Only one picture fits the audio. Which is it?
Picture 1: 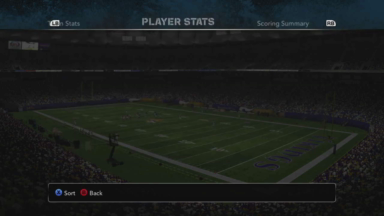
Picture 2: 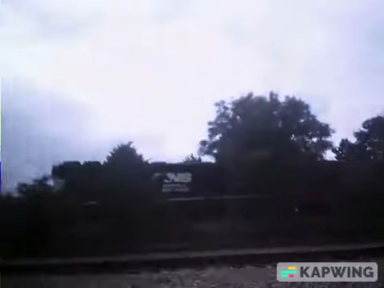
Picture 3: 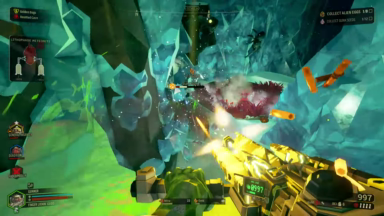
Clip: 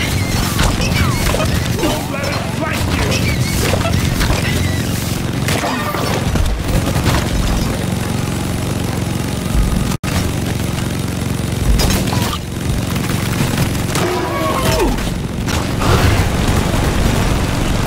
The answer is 3